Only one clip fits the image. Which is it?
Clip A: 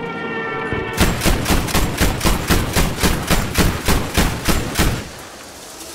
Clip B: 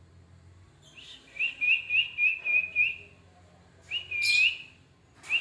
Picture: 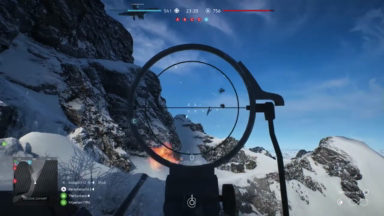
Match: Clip A